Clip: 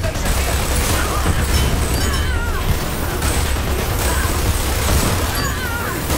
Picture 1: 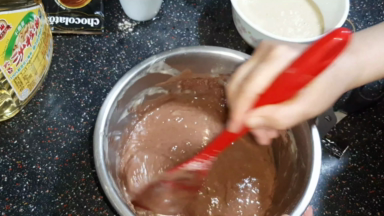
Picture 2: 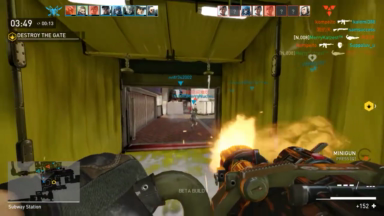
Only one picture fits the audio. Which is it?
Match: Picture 2